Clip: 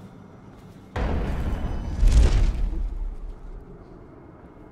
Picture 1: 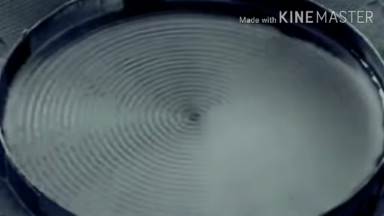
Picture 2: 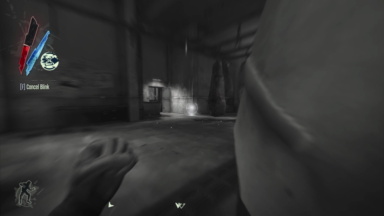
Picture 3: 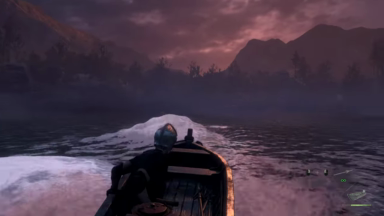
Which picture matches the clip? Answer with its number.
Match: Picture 2